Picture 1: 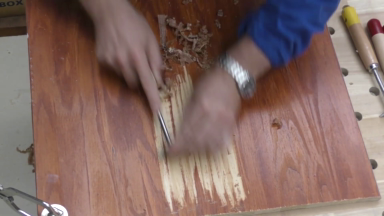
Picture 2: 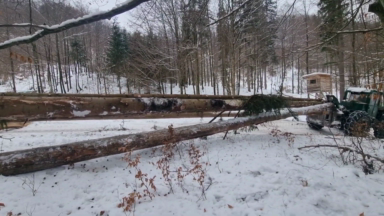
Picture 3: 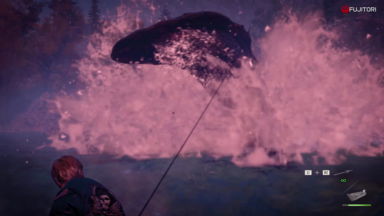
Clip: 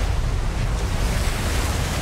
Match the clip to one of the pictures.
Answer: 3